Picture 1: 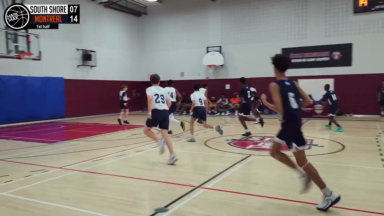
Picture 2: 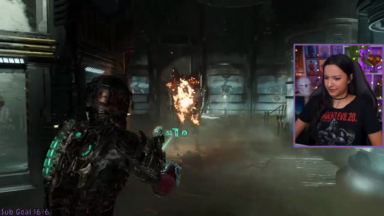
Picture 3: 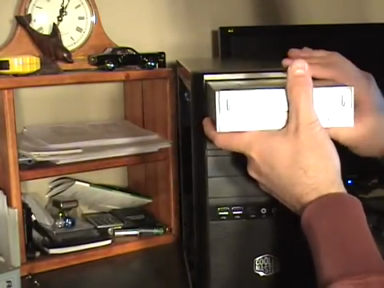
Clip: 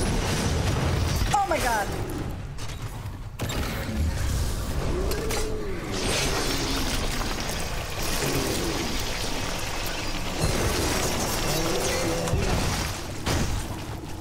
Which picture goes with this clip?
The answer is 2